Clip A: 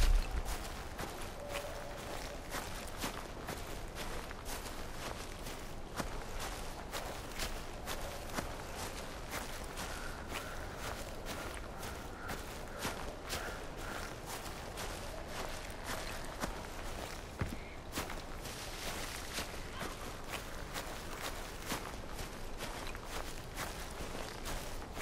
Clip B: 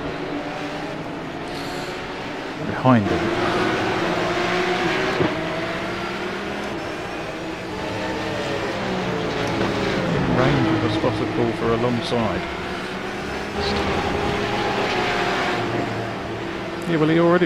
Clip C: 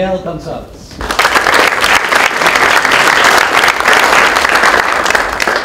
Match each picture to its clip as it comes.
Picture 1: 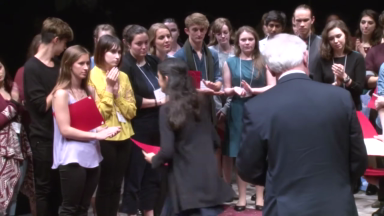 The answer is C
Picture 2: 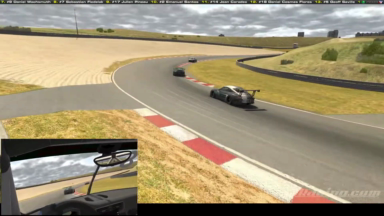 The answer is B